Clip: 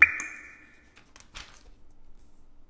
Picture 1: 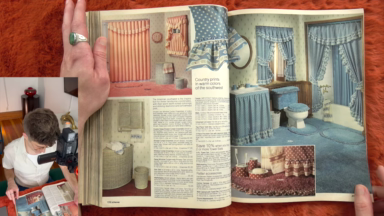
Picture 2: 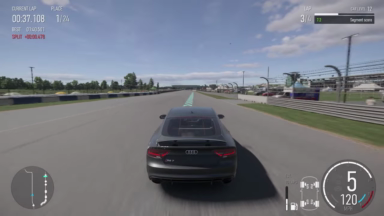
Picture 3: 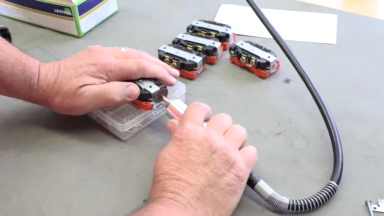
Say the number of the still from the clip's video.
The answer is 1